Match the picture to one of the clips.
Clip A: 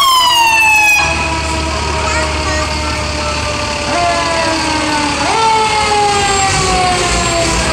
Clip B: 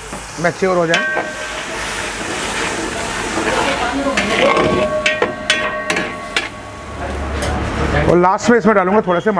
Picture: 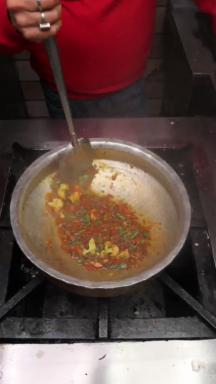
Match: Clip B